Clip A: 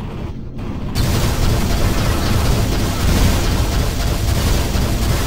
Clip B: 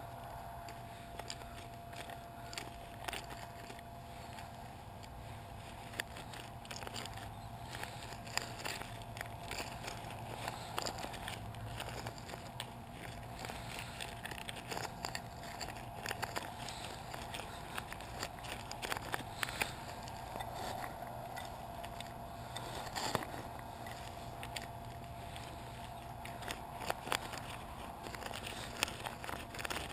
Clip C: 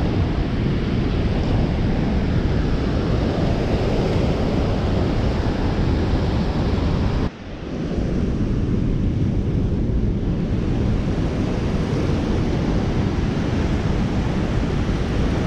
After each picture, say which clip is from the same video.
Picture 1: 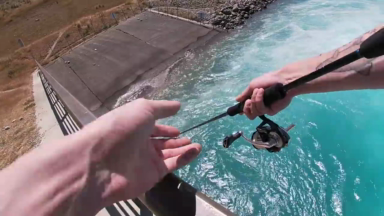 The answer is C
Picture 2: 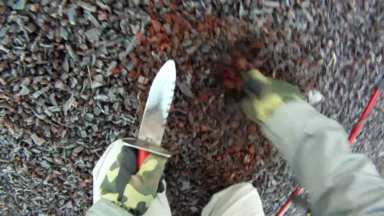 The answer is B